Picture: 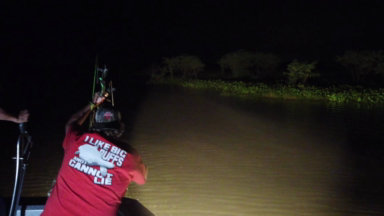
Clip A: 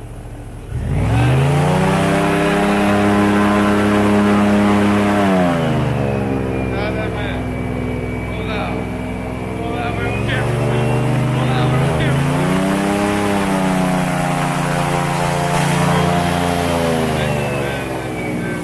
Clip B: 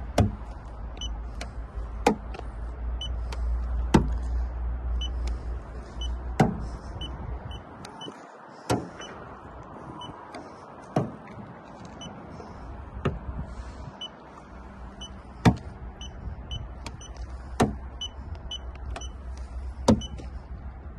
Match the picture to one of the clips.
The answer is A